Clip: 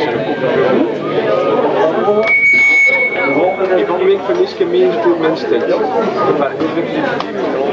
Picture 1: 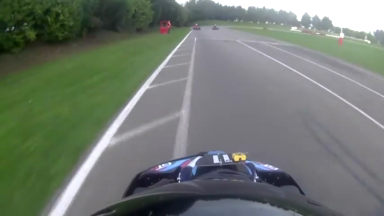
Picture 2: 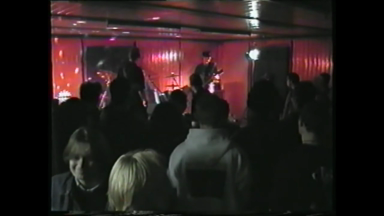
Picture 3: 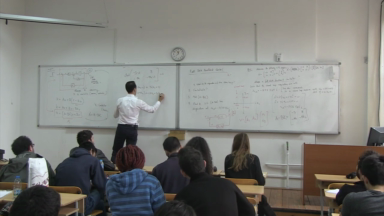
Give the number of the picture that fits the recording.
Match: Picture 2